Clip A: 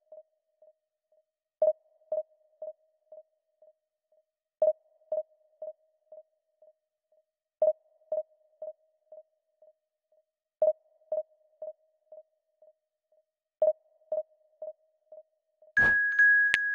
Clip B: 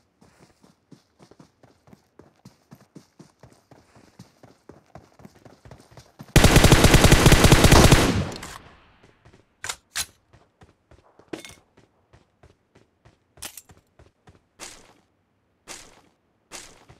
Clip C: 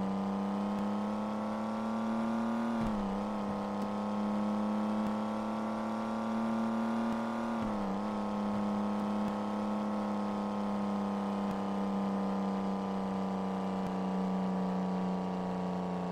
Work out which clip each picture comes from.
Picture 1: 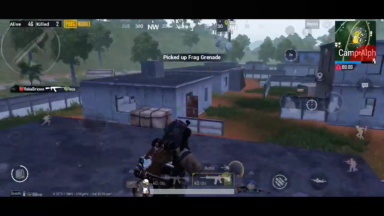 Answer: B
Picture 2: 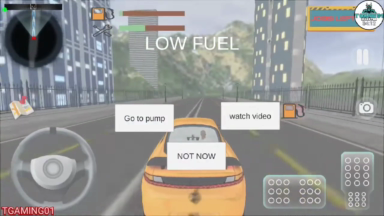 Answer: C